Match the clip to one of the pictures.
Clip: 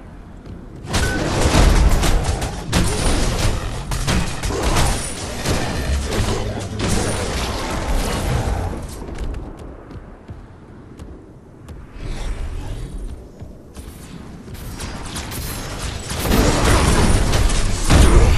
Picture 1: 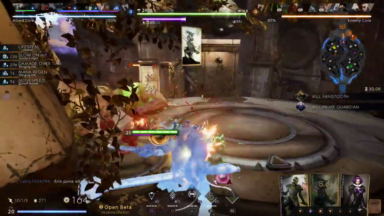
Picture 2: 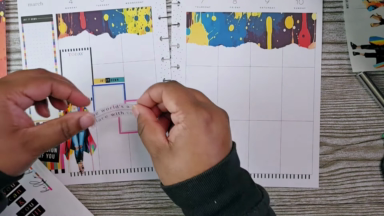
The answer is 1